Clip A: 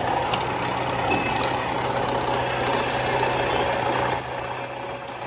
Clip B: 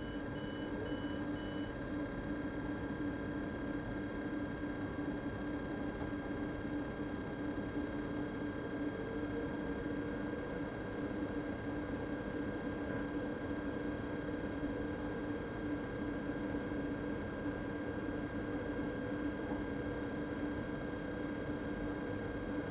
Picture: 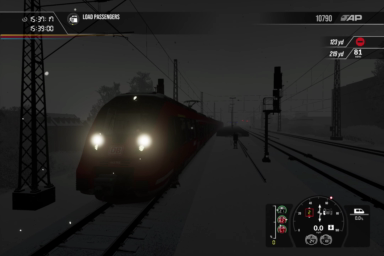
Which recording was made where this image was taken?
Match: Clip B